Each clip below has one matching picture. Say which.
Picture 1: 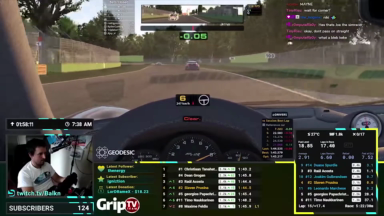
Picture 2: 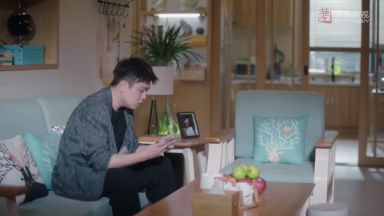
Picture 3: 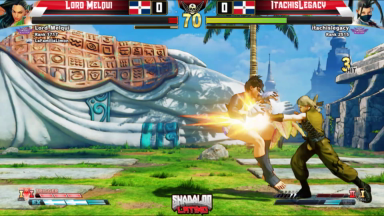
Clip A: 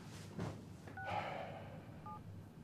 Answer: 2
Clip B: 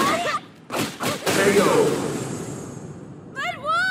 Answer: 3